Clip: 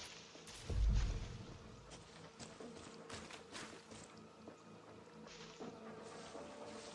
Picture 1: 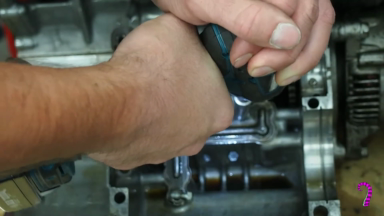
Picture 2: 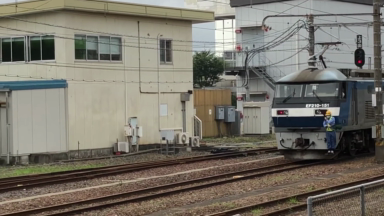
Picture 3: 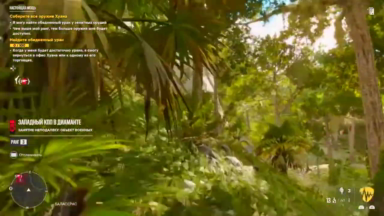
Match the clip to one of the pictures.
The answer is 3